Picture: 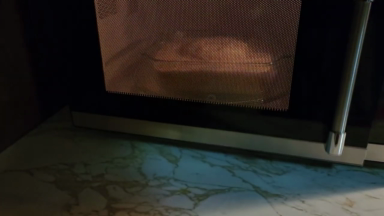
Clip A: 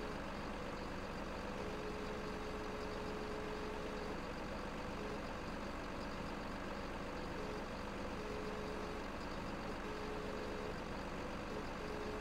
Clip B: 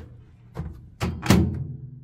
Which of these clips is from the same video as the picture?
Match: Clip B